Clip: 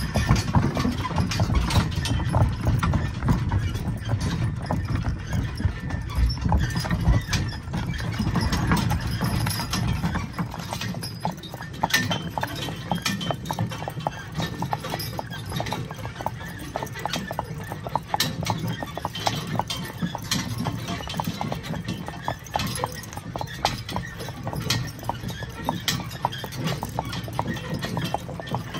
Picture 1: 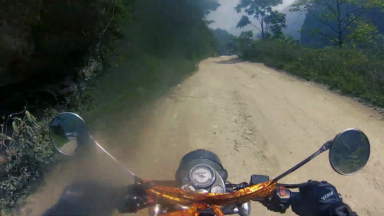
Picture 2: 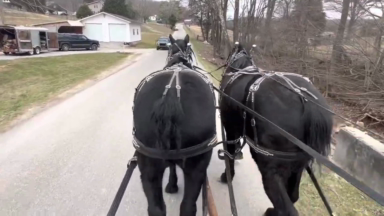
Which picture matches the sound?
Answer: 2